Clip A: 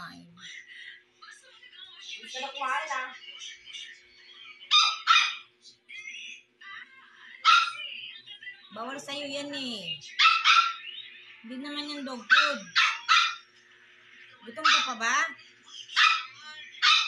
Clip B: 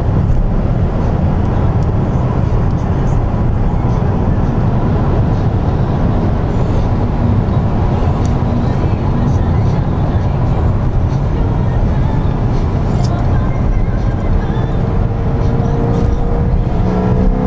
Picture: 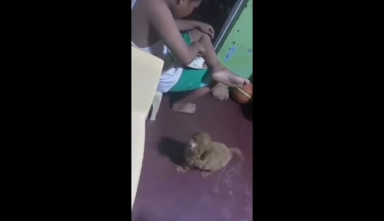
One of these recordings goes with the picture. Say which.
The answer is A